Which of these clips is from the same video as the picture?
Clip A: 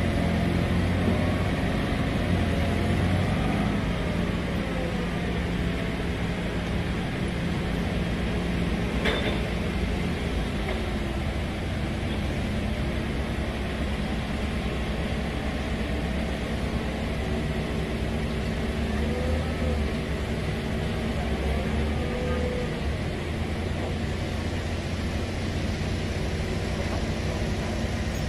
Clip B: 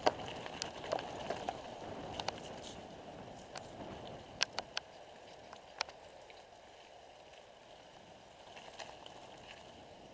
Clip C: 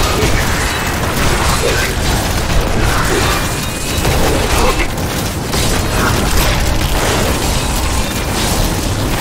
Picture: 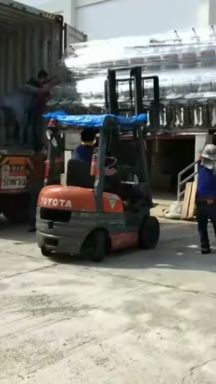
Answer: A